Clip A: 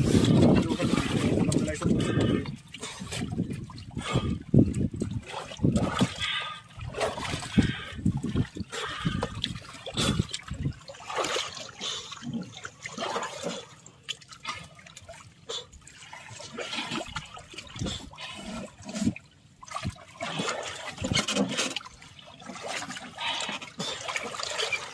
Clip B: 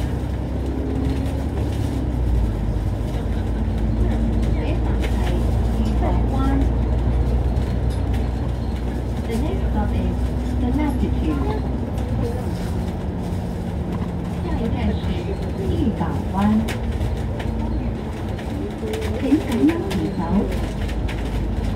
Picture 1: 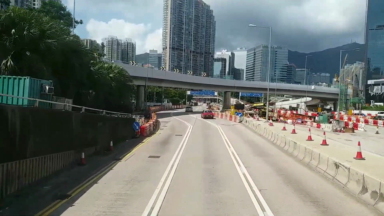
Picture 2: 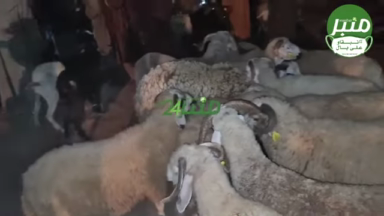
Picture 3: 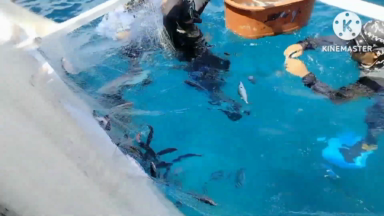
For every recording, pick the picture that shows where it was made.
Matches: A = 3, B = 1